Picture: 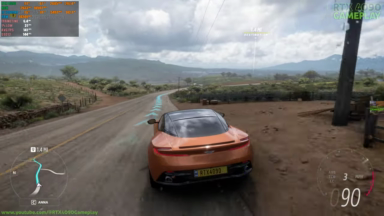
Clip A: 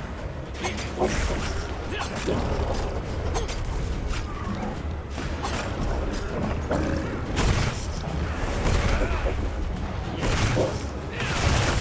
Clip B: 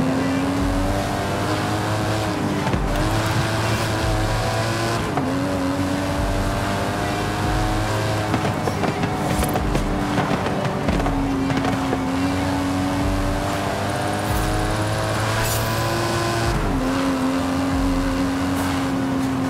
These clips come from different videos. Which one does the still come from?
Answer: B